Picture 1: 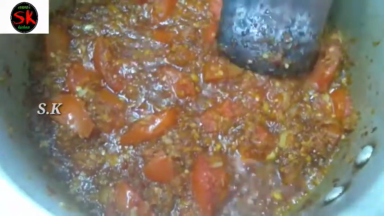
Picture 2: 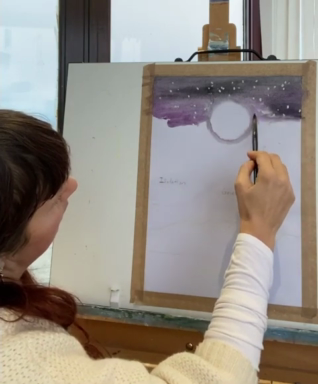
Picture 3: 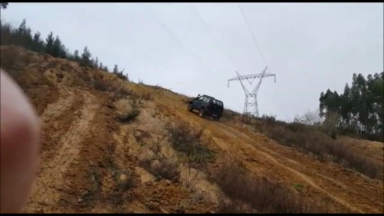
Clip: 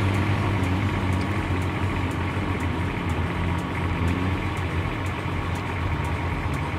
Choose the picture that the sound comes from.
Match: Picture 3